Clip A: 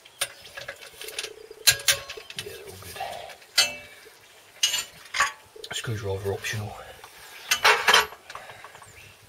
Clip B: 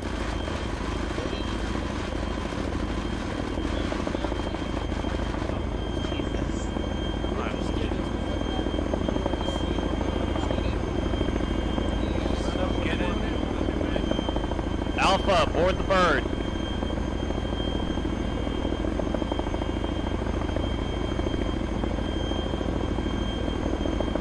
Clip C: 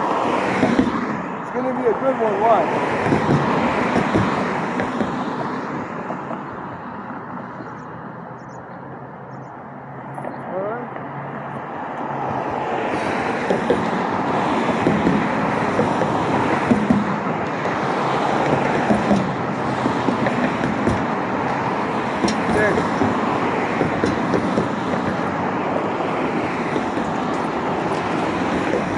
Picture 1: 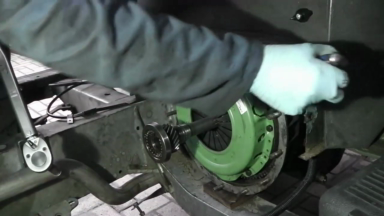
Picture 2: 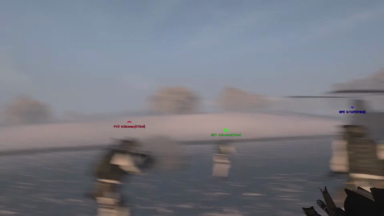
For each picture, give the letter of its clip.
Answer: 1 A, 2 B